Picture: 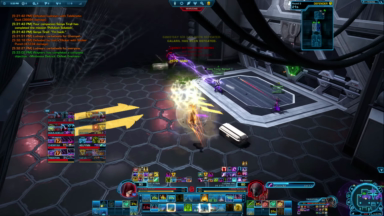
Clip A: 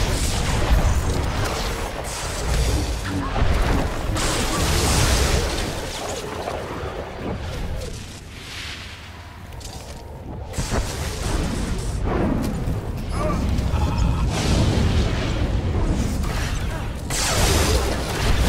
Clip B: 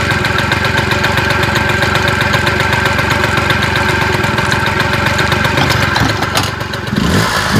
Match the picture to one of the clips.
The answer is A